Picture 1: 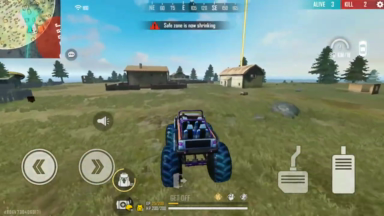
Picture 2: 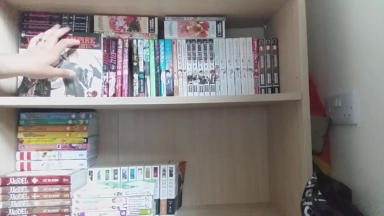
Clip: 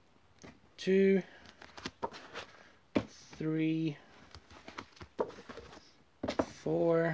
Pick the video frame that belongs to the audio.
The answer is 2